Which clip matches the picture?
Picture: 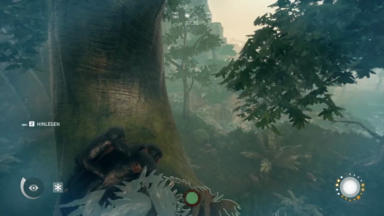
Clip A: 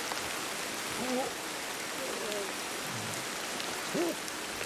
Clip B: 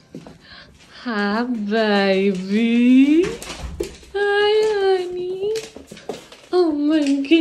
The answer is A